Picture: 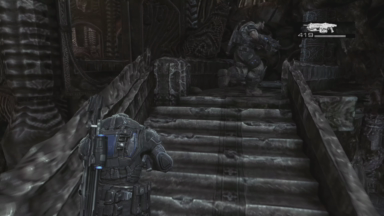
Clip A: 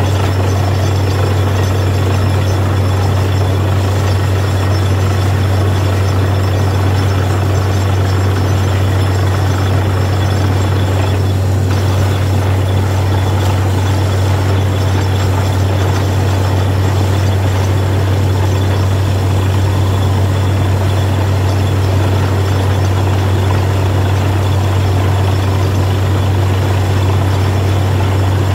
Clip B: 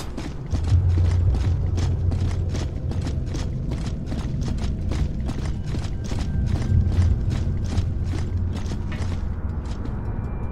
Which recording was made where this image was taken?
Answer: B